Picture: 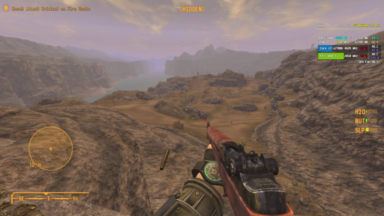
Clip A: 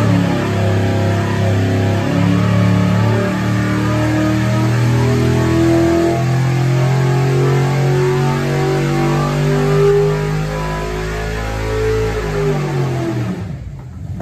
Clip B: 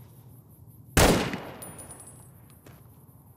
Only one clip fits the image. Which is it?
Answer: B